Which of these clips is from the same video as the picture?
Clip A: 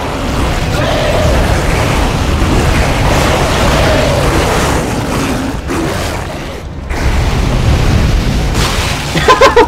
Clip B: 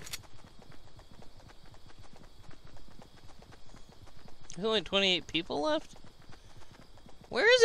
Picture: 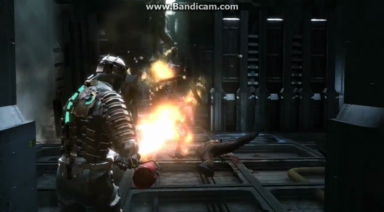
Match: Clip A